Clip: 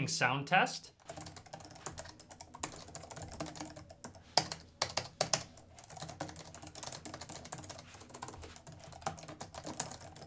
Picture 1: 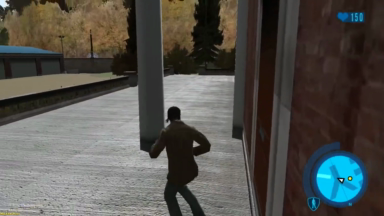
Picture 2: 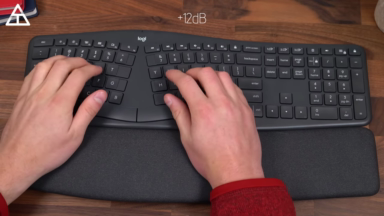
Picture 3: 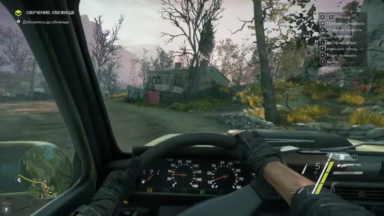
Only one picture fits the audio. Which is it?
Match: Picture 2